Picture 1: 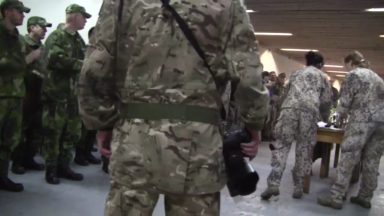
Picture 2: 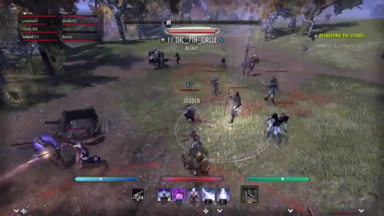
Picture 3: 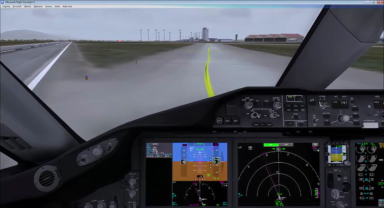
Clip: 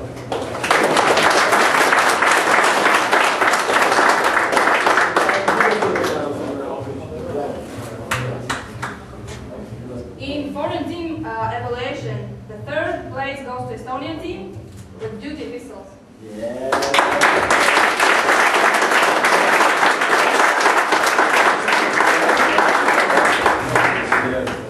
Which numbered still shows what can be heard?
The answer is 1